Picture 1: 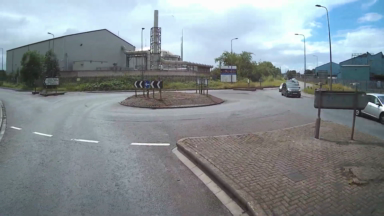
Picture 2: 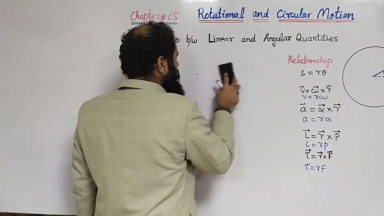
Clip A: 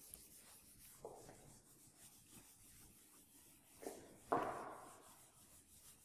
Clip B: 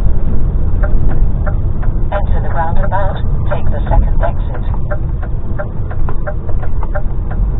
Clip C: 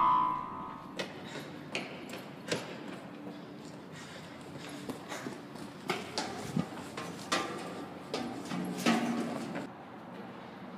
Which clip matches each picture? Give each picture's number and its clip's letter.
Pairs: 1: B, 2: A